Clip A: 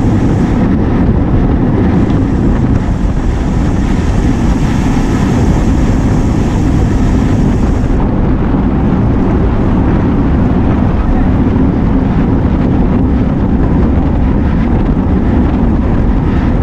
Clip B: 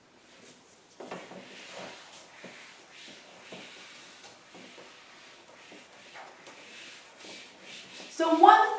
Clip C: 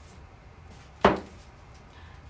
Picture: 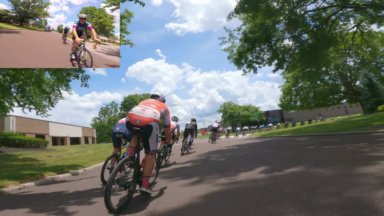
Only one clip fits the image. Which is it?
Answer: A